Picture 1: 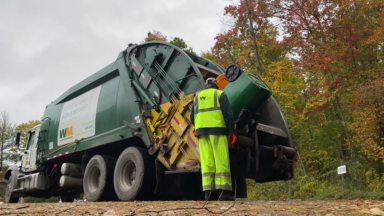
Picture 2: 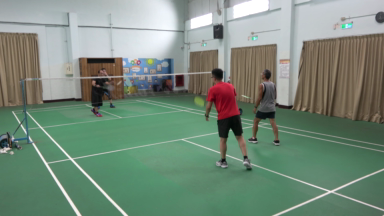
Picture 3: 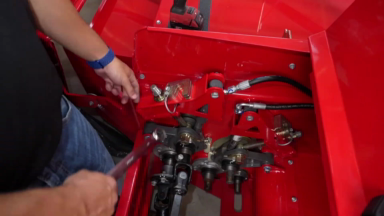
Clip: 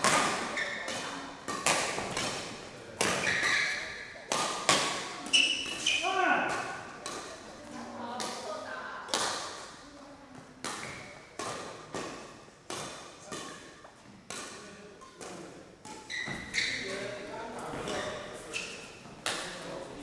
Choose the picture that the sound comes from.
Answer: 2